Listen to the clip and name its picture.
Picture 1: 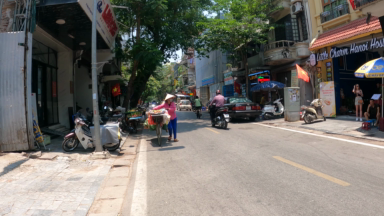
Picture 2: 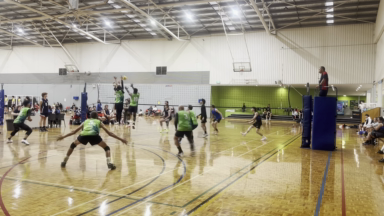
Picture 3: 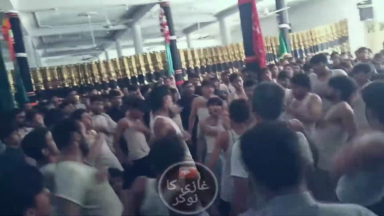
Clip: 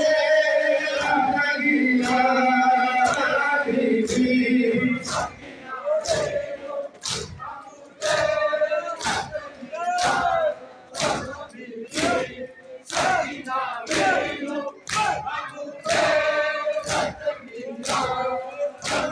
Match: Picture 3